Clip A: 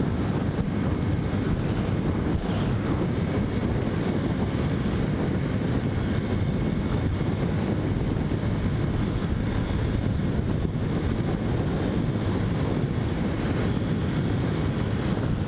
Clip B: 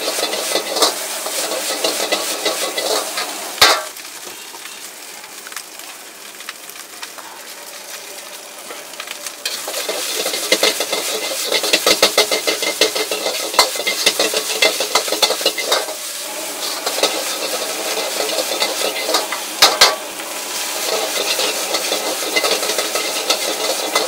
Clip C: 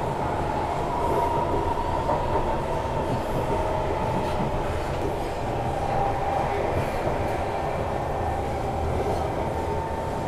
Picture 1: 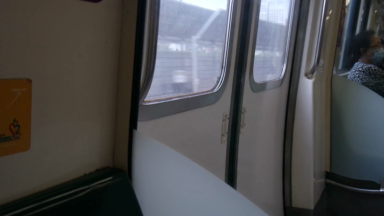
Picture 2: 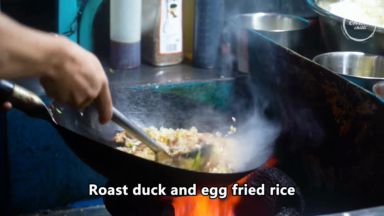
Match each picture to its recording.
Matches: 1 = C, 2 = B